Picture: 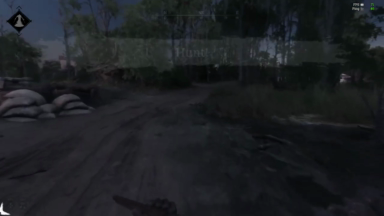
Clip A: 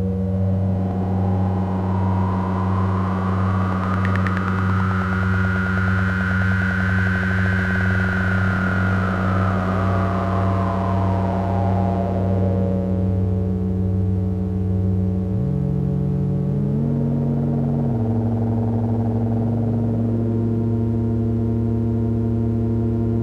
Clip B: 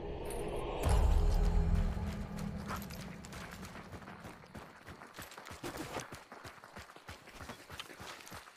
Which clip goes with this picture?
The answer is B